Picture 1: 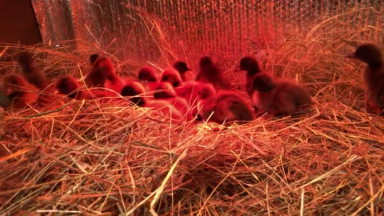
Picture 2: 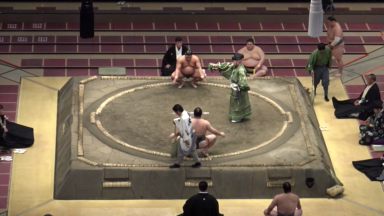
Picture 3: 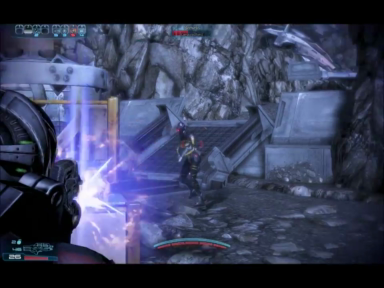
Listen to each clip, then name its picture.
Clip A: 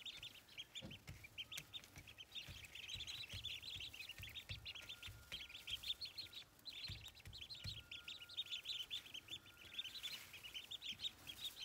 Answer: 1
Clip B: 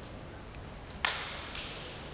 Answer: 2